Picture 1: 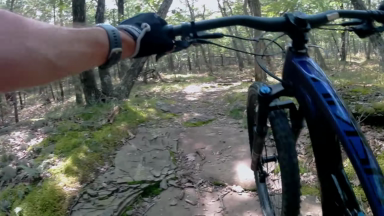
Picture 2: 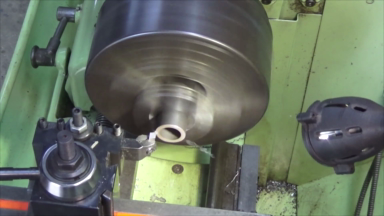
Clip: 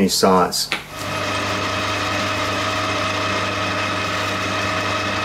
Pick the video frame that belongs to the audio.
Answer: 2